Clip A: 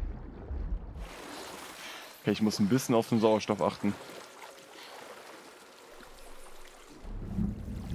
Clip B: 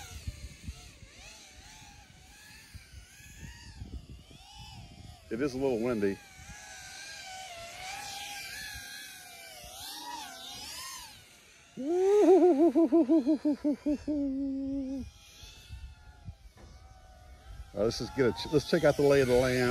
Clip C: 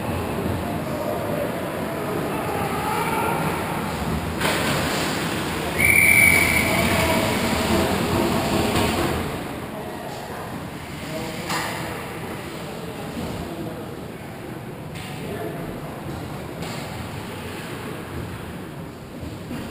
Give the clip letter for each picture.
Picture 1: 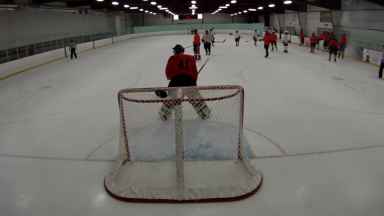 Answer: C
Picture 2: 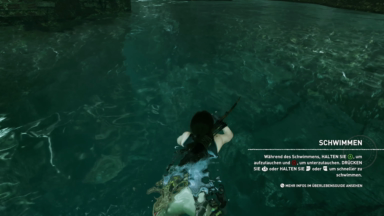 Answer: A